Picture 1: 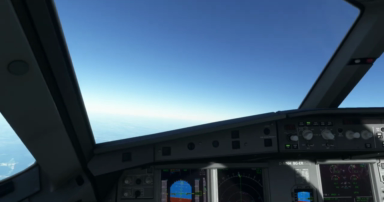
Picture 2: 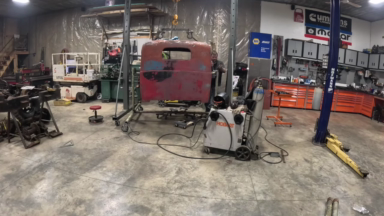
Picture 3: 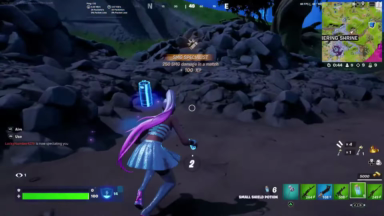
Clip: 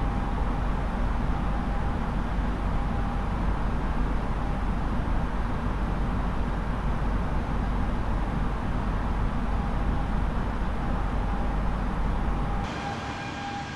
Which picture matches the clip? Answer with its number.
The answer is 1